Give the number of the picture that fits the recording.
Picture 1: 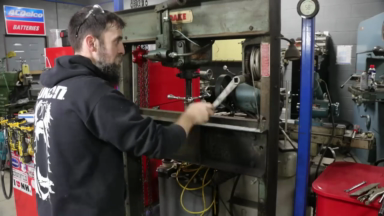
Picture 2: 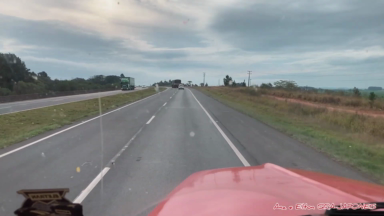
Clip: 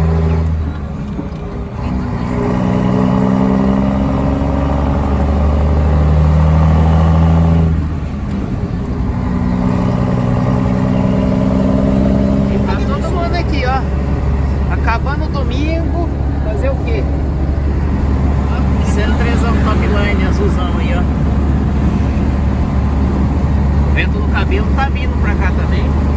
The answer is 2